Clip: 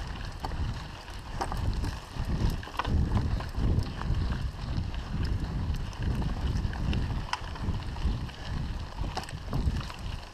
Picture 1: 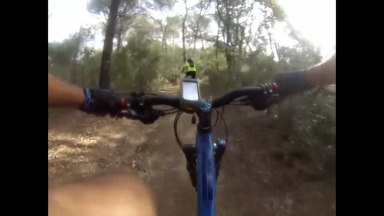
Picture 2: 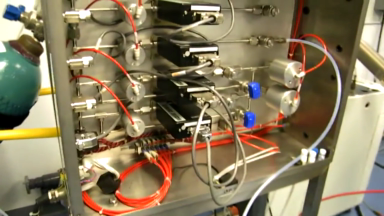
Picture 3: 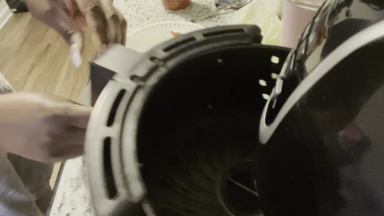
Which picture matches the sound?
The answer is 1